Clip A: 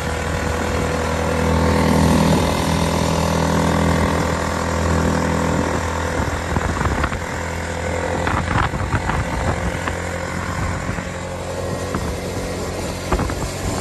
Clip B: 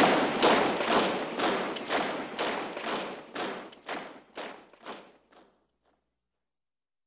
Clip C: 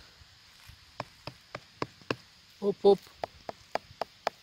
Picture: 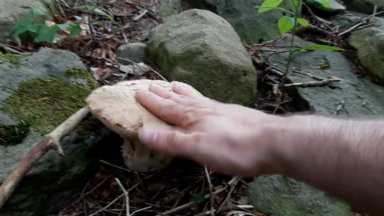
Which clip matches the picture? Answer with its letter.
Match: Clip C